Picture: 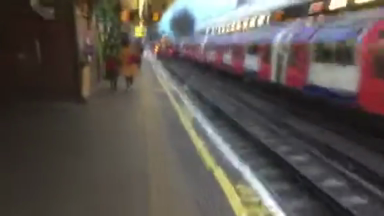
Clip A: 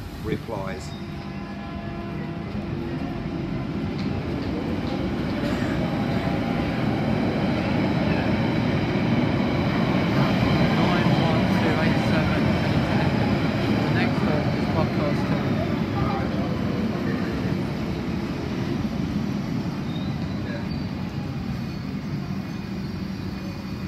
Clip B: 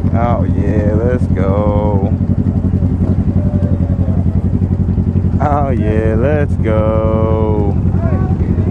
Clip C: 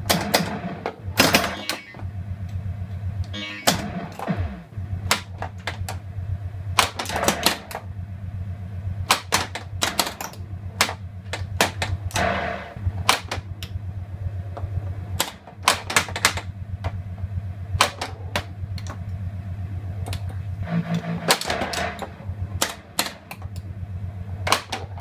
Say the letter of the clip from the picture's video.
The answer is A